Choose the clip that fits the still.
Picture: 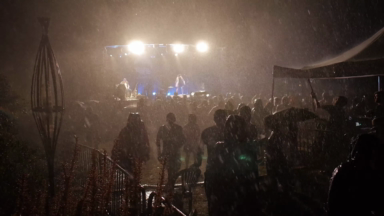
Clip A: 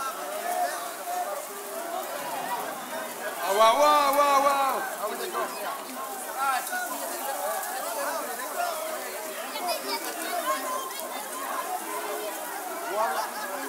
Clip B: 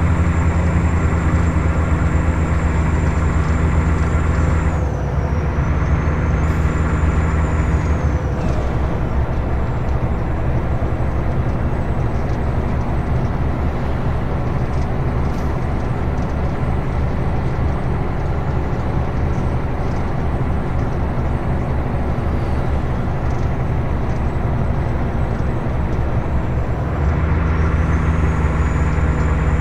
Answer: A